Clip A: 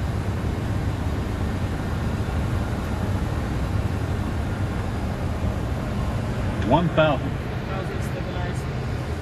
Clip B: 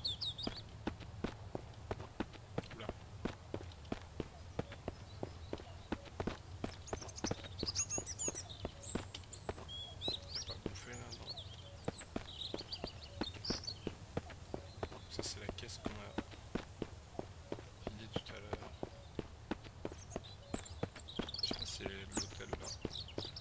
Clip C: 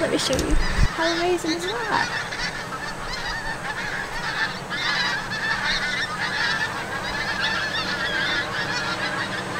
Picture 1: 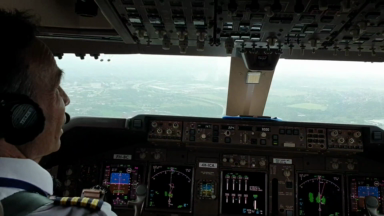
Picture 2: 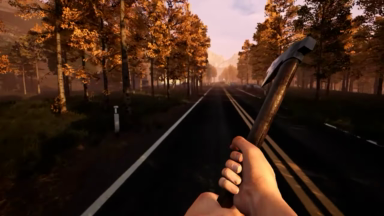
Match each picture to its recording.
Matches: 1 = A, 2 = B